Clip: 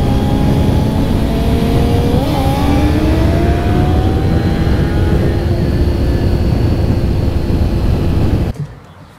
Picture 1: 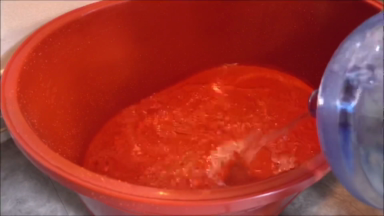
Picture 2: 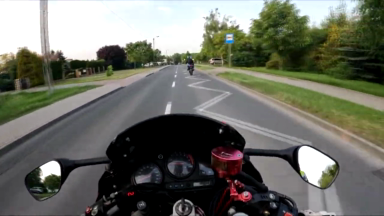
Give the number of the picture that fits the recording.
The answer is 2